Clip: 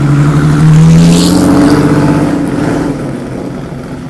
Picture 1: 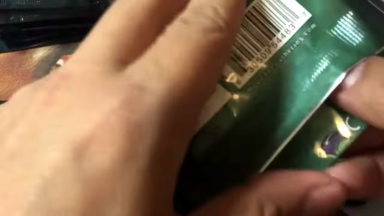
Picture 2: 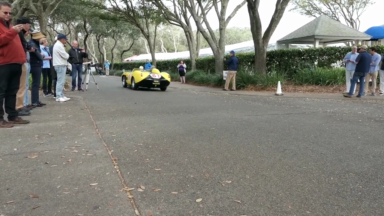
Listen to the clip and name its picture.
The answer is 2